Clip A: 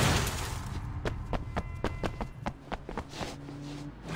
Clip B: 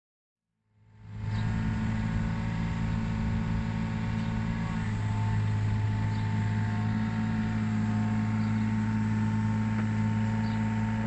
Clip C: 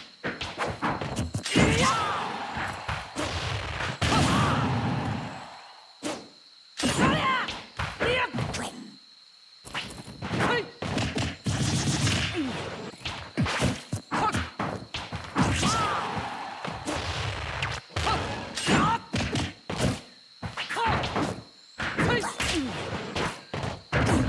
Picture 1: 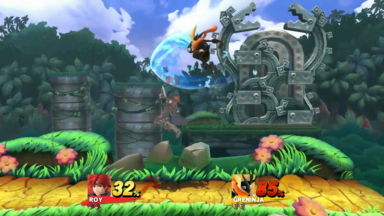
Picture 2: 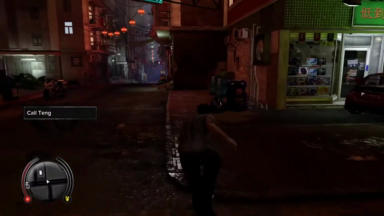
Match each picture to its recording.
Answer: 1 C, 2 A